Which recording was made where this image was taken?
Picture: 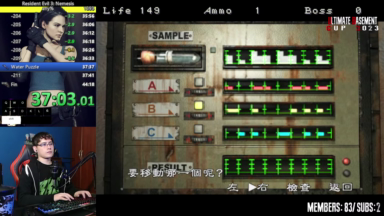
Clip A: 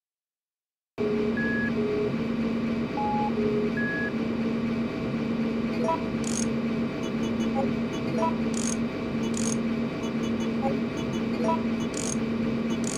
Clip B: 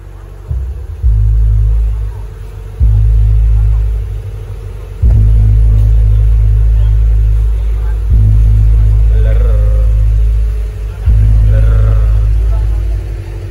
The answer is A